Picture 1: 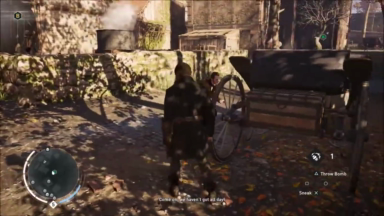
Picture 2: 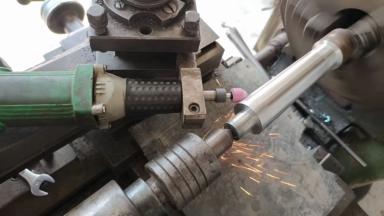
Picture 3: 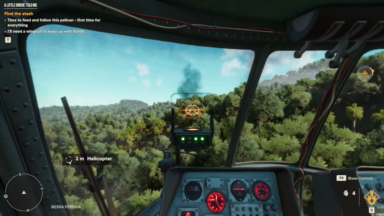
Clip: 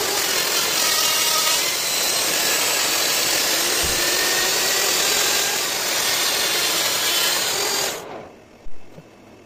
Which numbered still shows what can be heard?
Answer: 2